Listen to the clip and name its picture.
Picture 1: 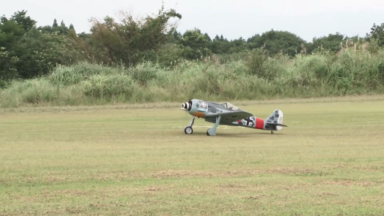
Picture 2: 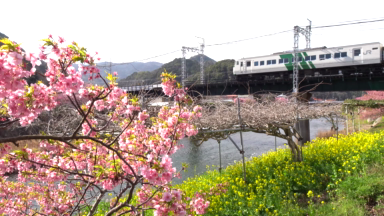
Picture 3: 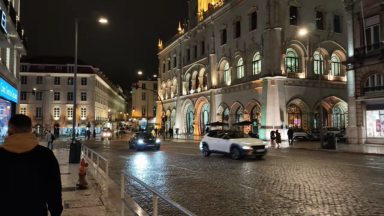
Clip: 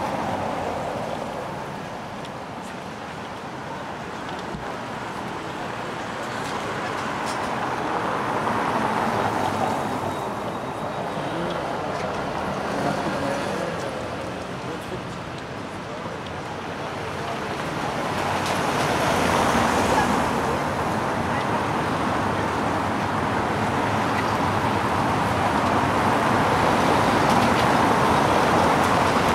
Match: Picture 3